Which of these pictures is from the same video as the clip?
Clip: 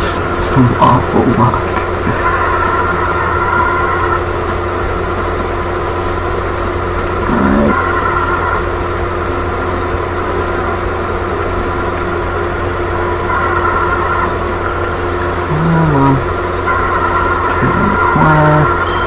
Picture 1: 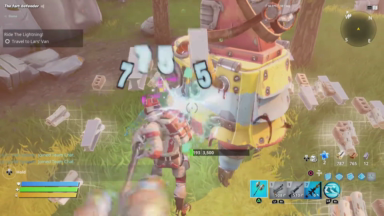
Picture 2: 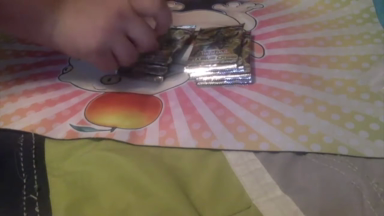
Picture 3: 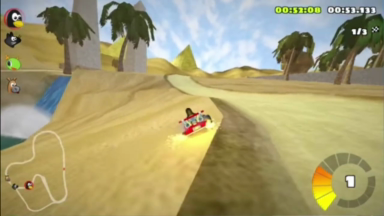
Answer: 3